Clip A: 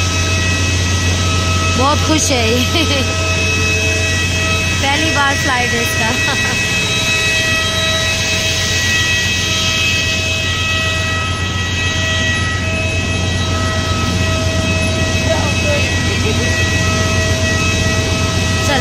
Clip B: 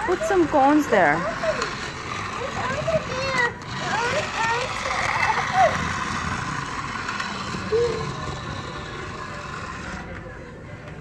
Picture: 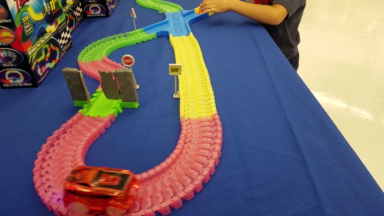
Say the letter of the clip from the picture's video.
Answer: B